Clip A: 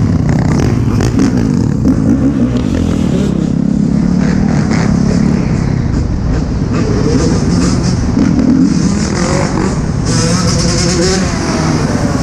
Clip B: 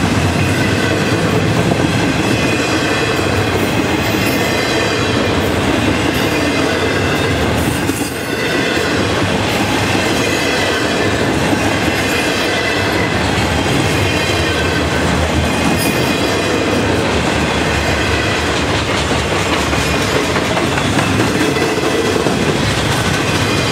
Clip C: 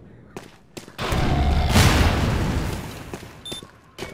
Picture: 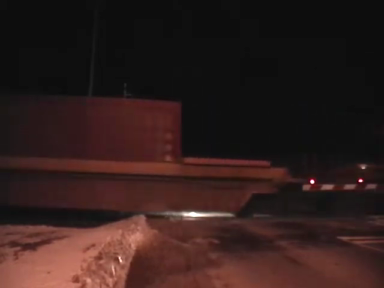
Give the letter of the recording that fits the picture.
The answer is B